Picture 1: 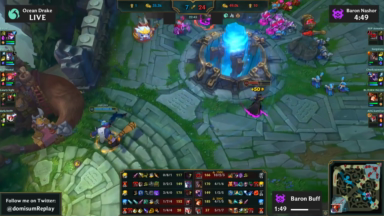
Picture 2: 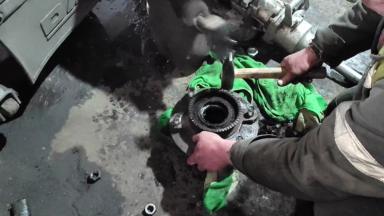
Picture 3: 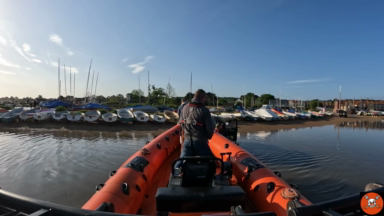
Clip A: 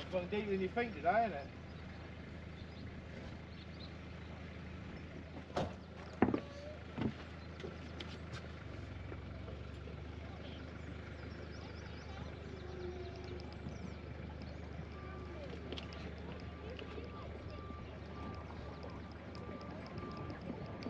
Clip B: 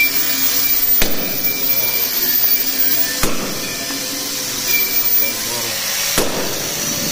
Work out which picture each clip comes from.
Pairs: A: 3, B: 2